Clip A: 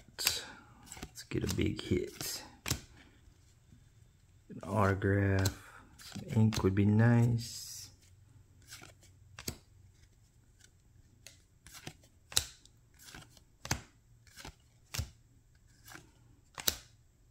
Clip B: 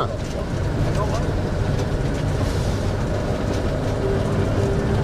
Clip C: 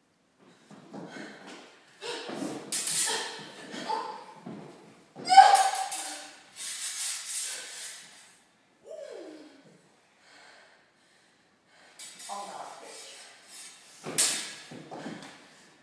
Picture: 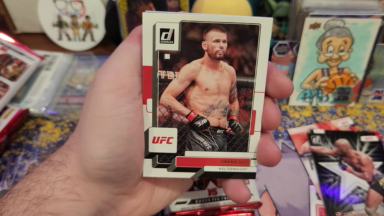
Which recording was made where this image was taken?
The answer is A